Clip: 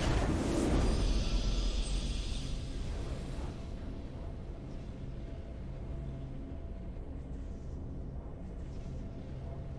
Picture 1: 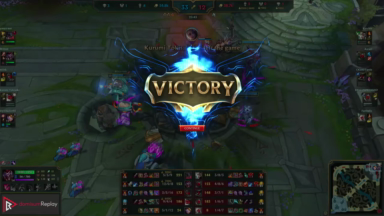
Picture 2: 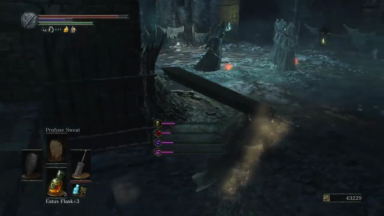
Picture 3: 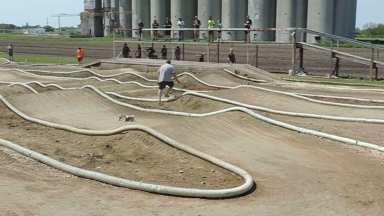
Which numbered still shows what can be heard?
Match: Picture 1